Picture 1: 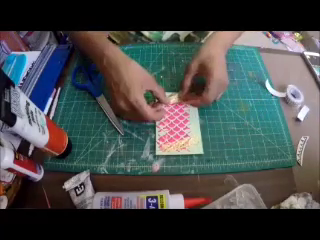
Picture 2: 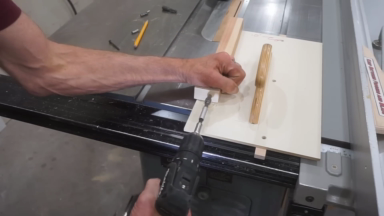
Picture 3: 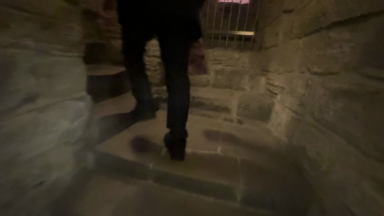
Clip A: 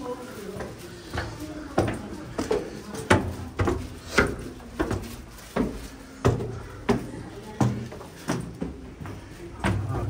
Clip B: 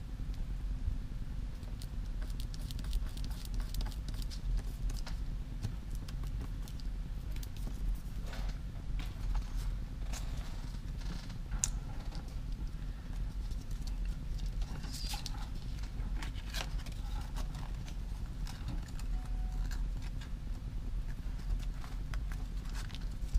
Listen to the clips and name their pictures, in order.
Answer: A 3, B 1